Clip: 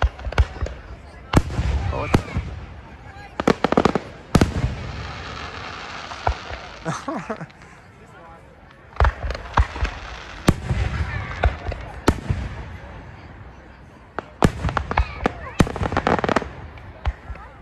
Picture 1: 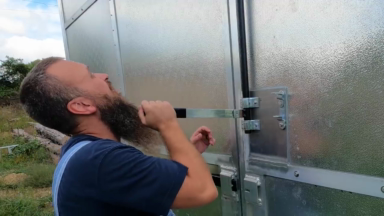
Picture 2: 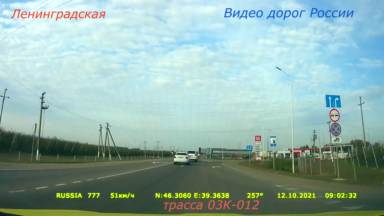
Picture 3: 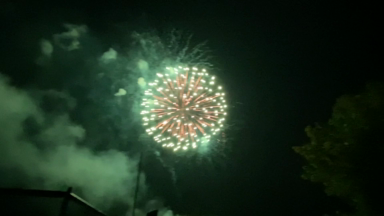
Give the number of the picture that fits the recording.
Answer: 3